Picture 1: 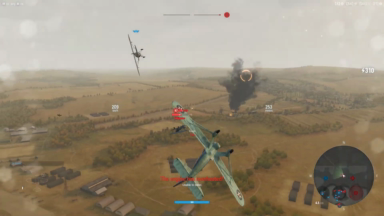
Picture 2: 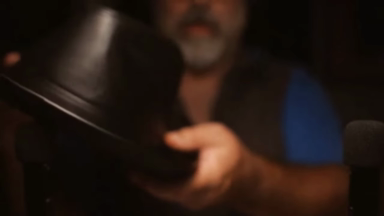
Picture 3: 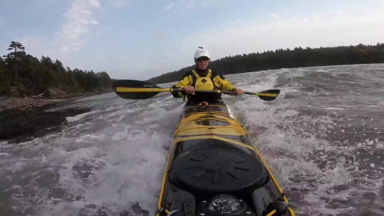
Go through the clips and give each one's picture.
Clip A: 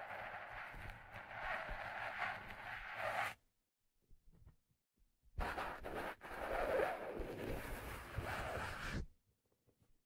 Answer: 2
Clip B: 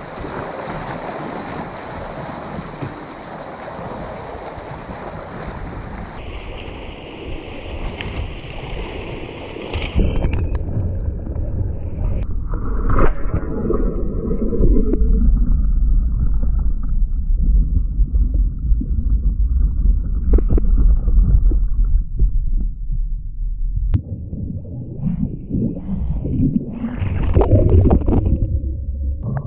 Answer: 3